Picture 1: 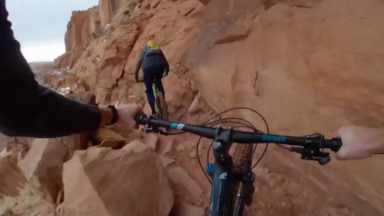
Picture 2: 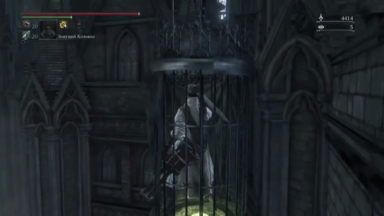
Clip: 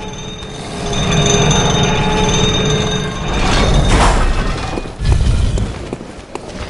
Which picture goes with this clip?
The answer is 2